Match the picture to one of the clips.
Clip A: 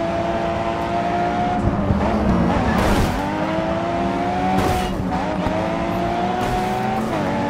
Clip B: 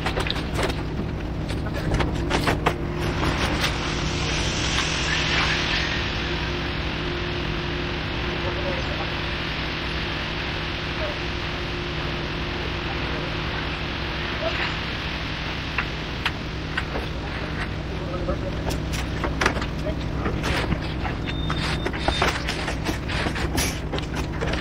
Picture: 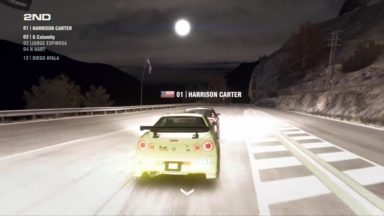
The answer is A